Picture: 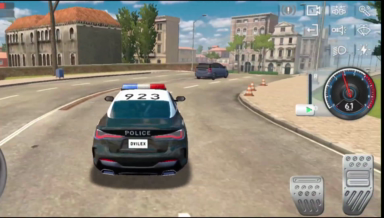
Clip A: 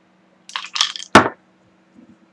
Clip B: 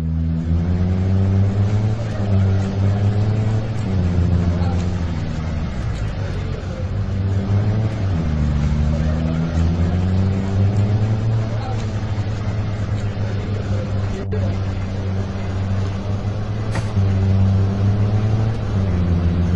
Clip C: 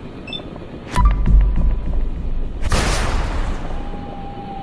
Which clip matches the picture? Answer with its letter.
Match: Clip B